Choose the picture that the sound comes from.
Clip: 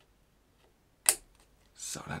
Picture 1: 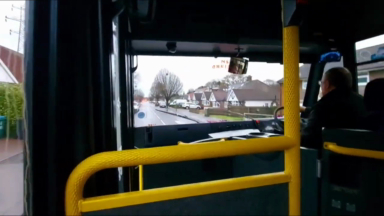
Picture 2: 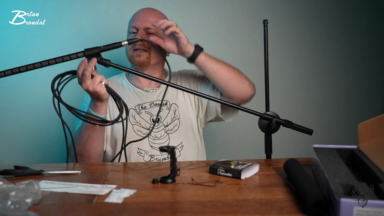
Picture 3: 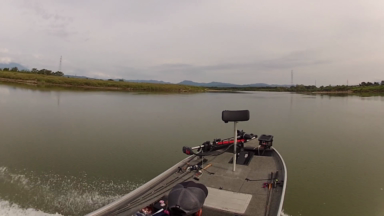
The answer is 2